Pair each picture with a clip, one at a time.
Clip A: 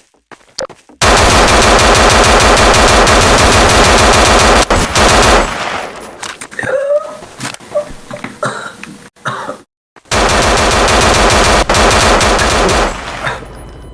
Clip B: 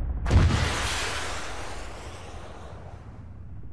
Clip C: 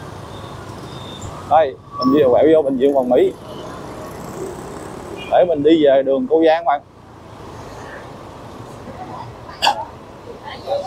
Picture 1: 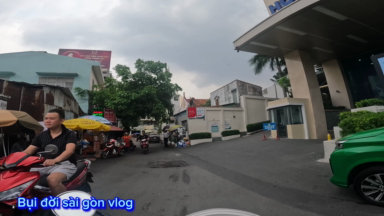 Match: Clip C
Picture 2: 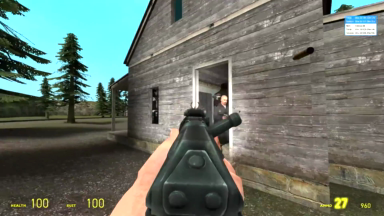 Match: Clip A